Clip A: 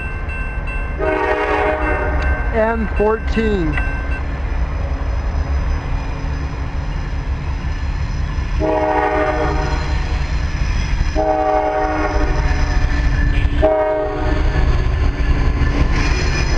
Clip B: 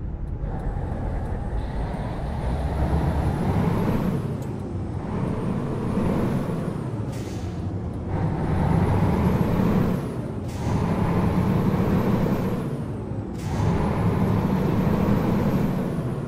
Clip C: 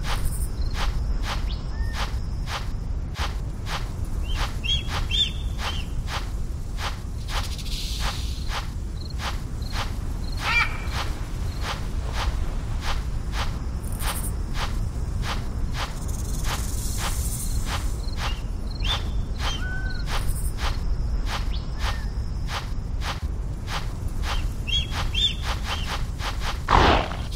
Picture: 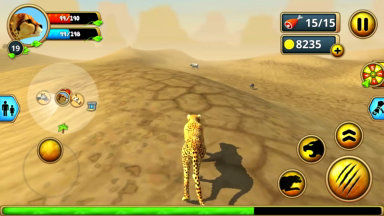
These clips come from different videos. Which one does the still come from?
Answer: C